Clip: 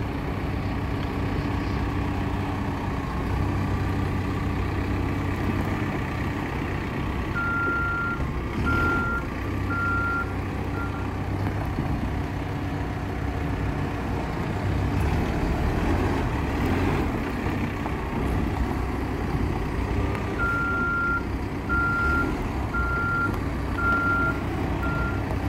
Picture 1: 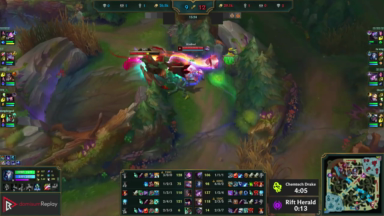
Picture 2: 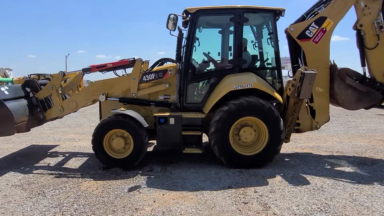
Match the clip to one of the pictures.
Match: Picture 2